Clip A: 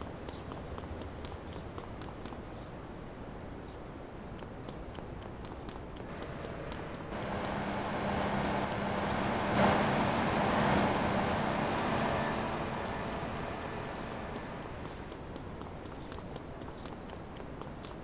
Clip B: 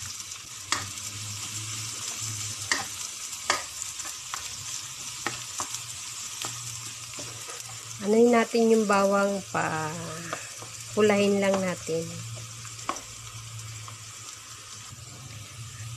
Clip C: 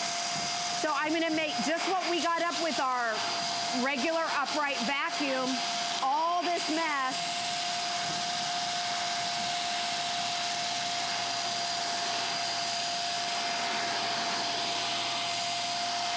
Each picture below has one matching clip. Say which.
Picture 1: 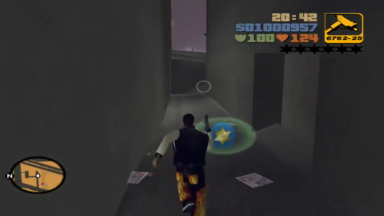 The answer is A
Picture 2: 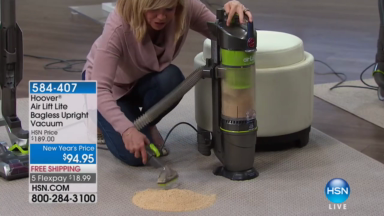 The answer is C